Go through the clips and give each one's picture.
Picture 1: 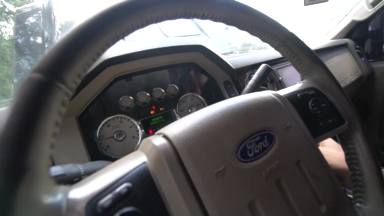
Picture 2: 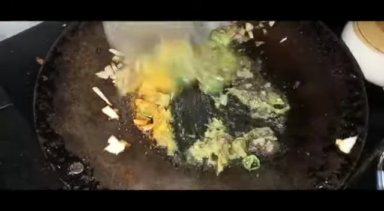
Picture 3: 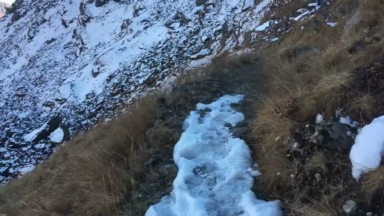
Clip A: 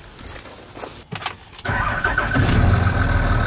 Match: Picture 1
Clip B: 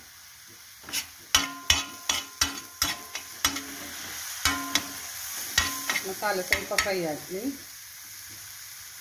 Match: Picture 2